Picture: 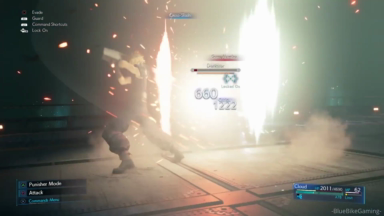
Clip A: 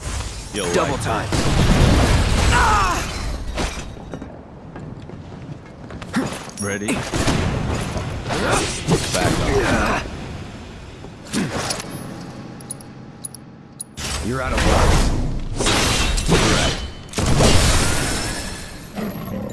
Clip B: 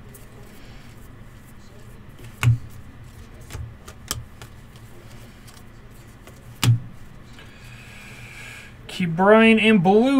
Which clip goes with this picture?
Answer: A